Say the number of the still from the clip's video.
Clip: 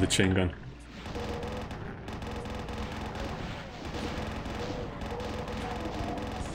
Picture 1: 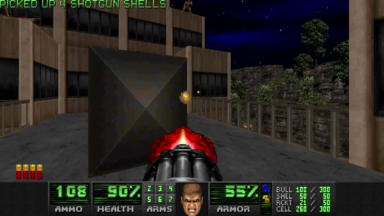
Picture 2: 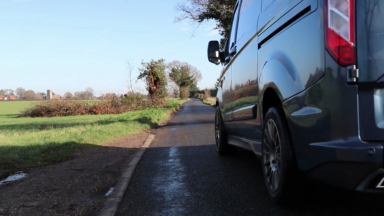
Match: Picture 1